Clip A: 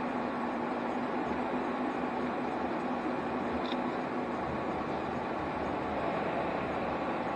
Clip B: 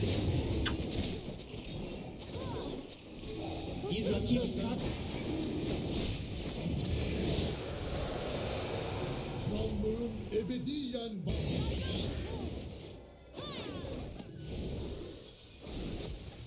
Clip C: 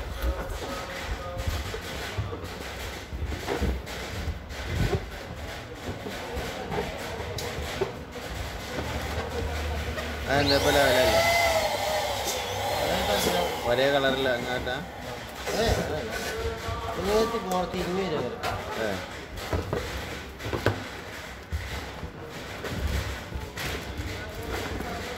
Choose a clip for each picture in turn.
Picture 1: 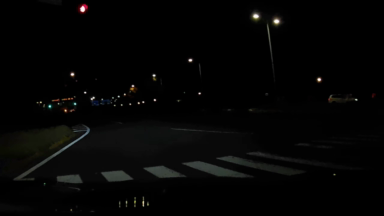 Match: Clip A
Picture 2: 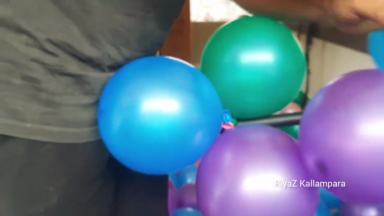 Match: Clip C